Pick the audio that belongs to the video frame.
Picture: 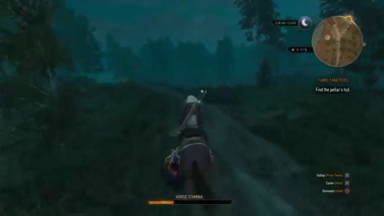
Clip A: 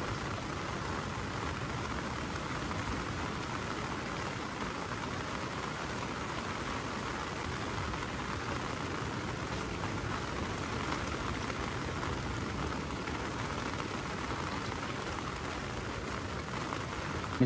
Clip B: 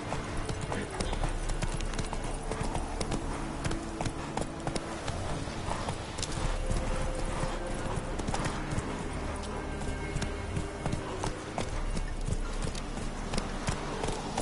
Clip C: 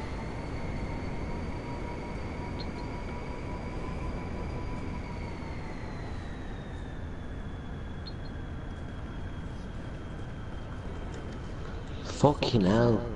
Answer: B